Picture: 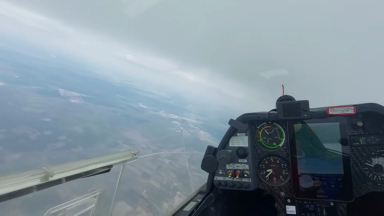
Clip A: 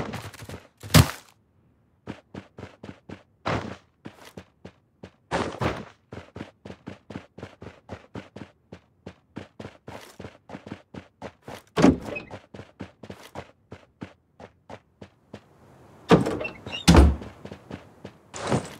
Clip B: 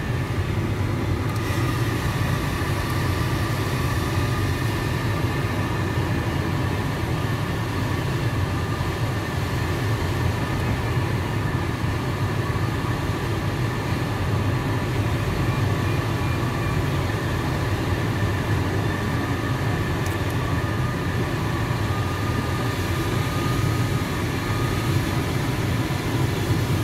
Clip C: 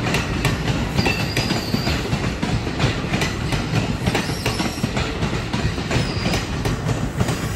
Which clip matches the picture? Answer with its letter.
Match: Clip B